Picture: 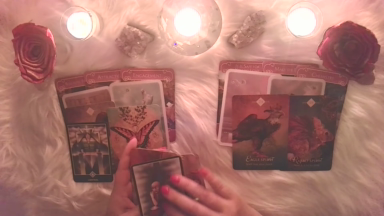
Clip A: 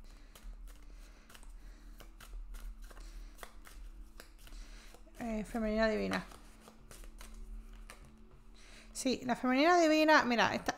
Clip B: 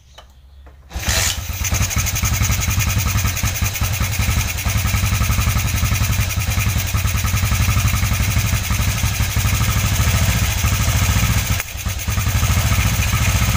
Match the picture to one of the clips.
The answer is A